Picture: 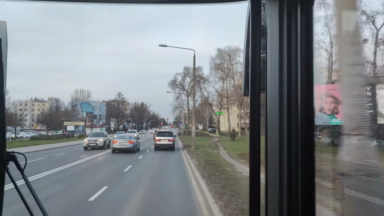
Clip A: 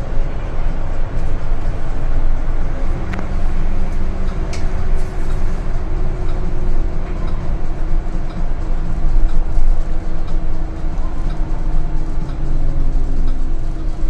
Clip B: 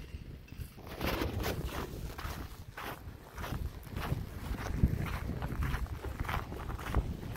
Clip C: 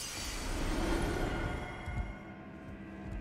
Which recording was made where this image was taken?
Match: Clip A